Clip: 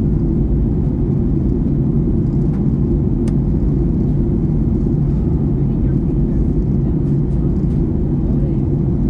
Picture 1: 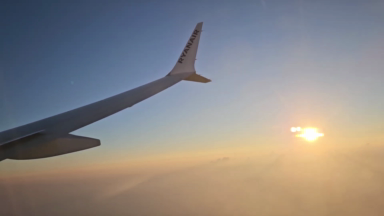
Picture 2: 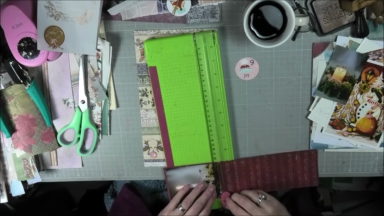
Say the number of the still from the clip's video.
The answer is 1